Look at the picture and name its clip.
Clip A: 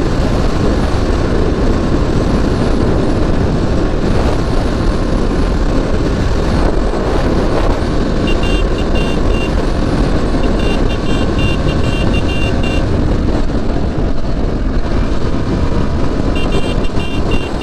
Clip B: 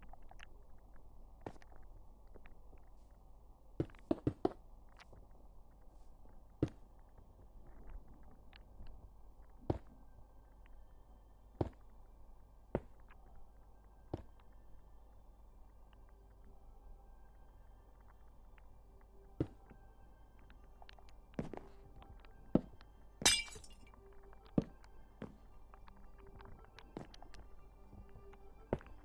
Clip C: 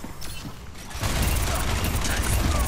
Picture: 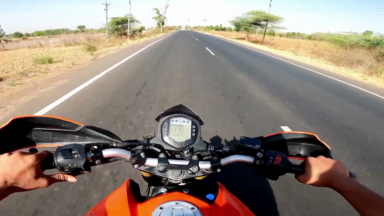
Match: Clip A